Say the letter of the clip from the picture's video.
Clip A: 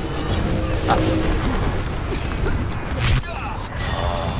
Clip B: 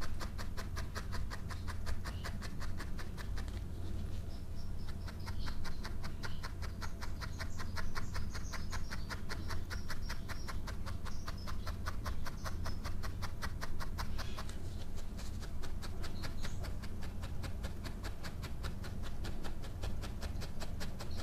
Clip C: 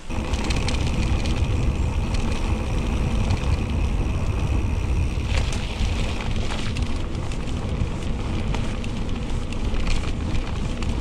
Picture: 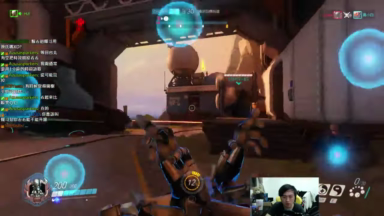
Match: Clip A